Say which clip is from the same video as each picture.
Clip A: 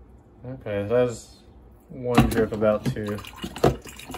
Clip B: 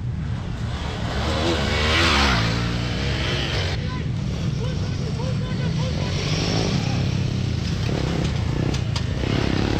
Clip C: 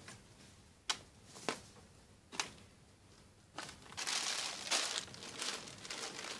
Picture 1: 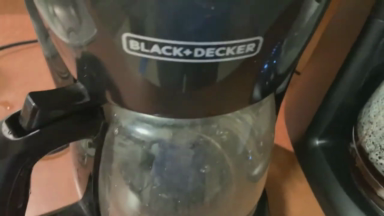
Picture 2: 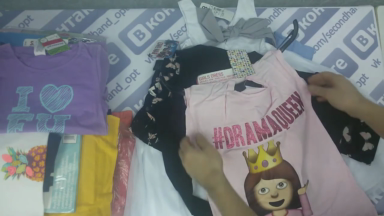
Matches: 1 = A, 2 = C